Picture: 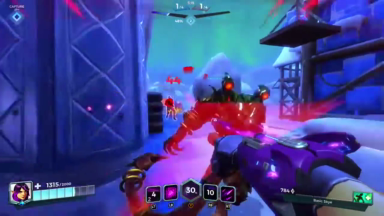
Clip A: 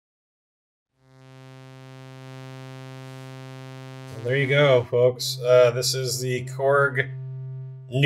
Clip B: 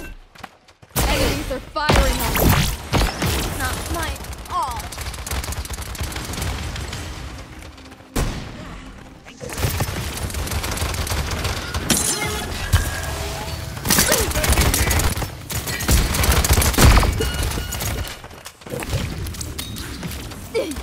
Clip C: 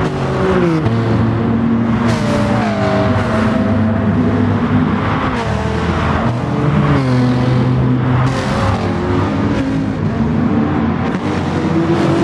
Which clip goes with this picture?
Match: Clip B